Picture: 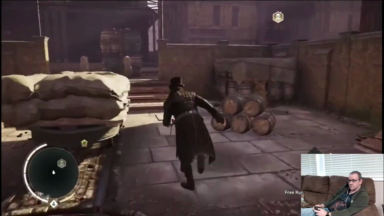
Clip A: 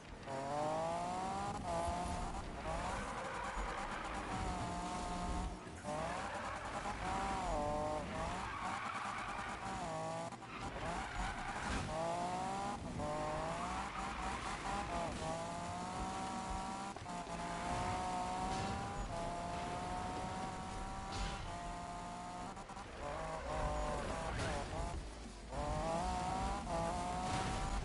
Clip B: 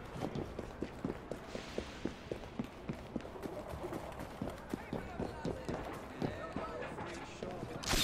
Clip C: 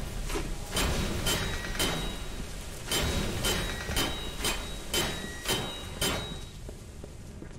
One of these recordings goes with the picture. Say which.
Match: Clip B